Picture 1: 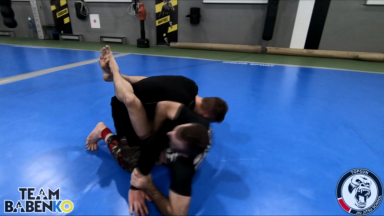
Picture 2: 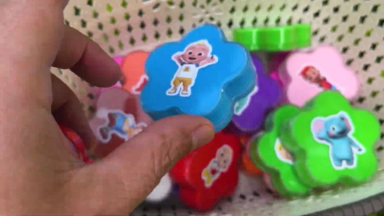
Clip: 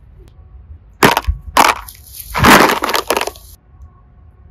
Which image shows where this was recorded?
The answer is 2